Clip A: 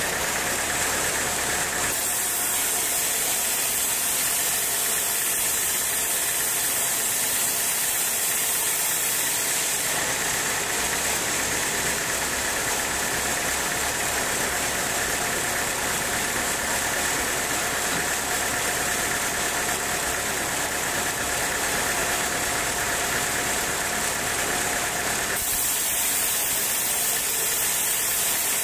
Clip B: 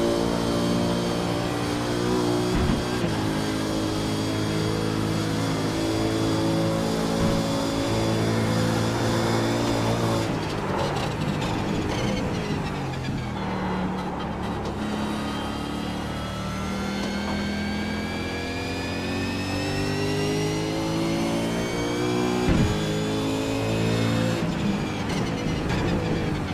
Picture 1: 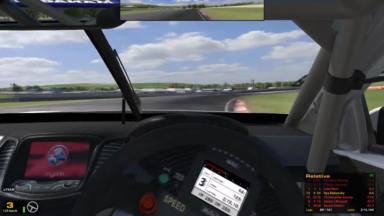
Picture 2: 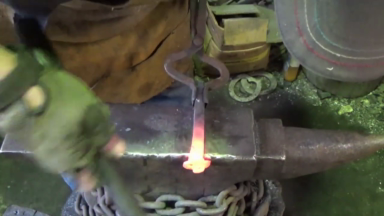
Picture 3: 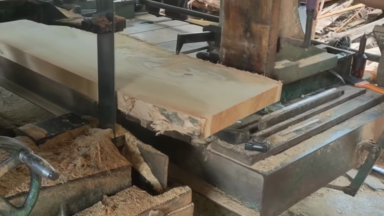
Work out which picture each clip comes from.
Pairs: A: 3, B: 1